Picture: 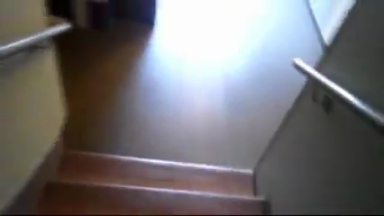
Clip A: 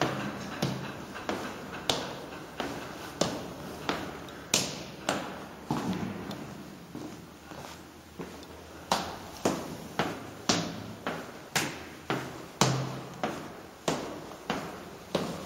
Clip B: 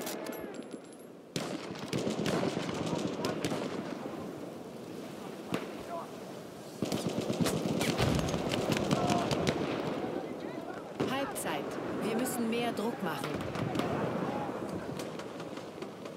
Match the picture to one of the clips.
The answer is A